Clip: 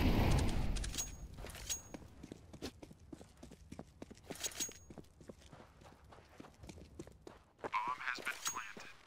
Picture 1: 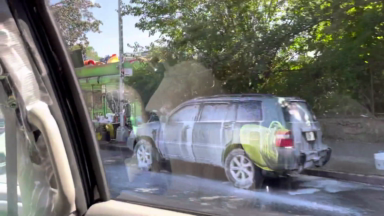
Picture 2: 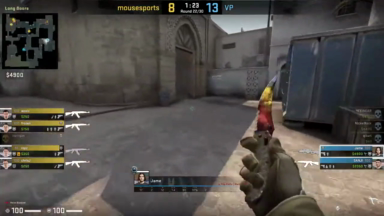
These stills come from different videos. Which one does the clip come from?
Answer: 2